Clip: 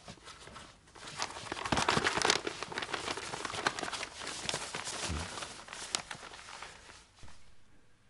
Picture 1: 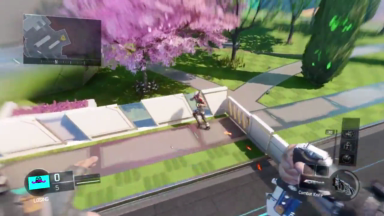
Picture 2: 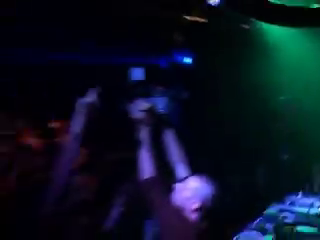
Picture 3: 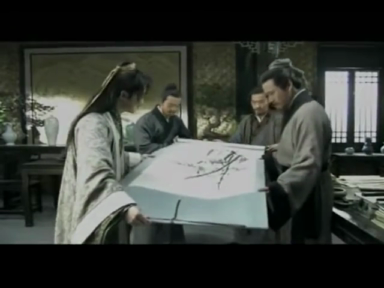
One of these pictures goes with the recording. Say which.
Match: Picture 3